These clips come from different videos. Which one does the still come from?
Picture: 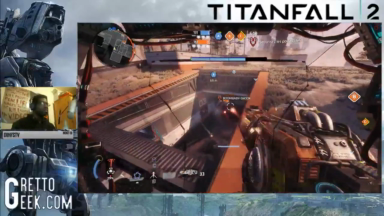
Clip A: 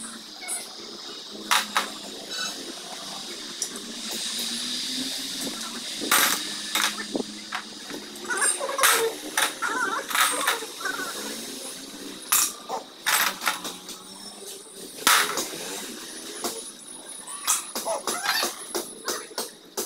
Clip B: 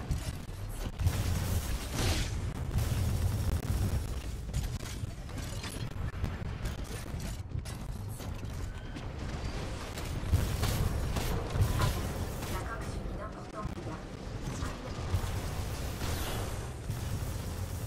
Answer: B